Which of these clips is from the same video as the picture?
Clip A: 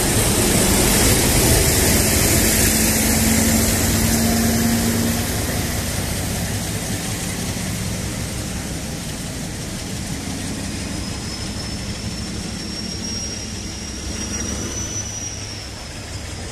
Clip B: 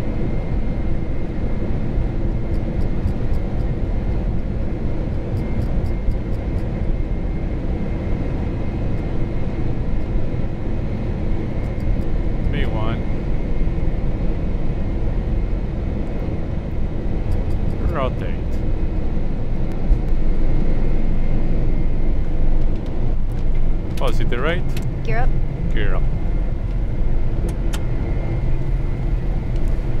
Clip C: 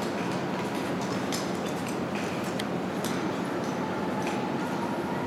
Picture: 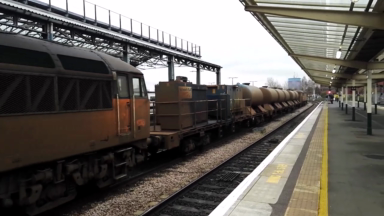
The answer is A